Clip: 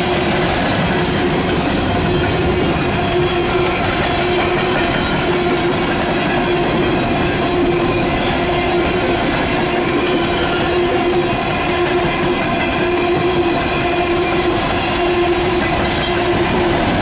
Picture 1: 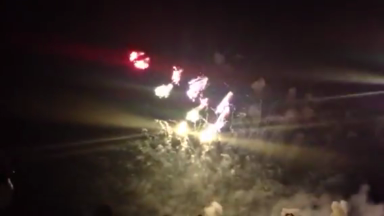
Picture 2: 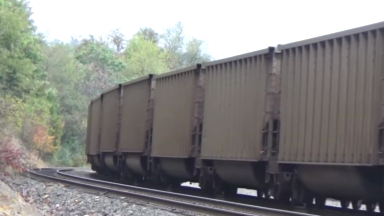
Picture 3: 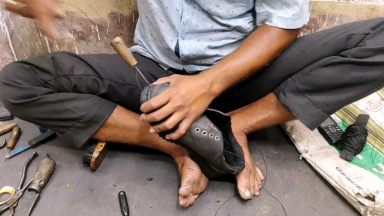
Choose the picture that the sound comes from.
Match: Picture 2